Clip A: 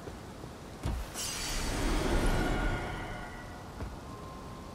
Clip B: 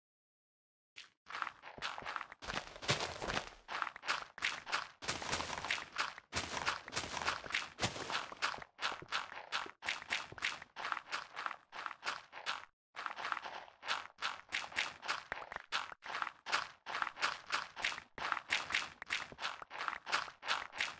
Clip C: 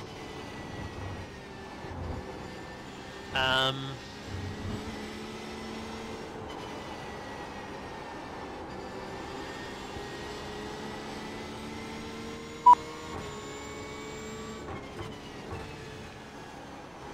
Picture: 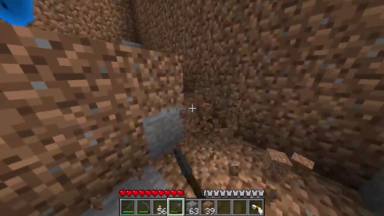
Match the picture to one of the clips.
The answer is B